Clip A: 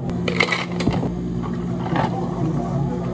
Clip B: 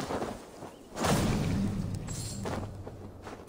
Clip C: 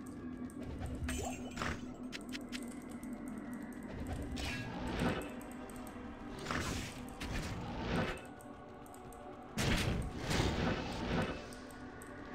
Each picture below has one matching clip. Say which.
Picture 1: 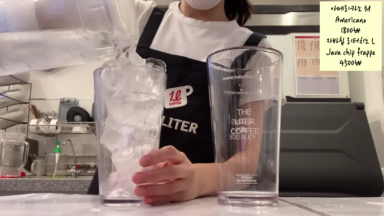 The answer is A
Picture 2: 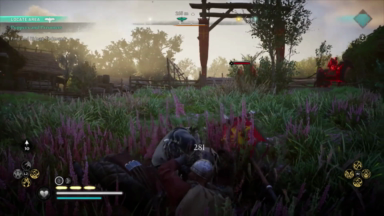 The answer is B